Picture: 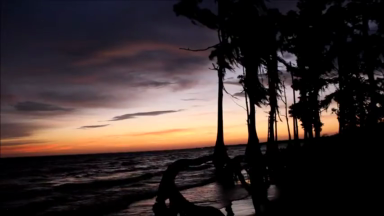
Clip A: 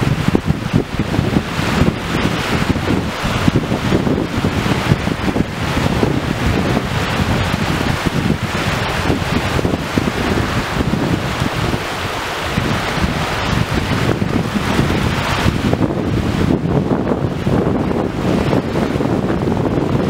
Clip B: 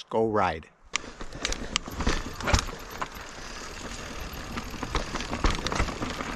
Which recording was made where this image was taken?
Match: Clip A